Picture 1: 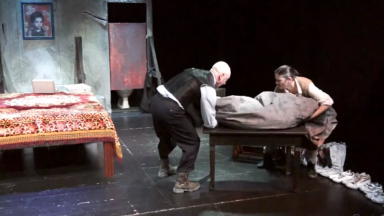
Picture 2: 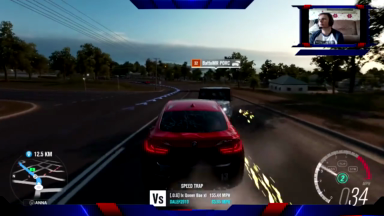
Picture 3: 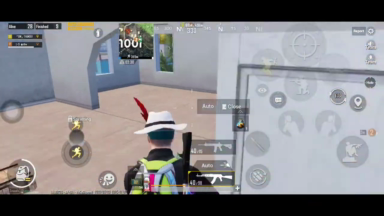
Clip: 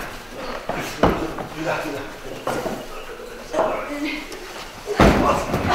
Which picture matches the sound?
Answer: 1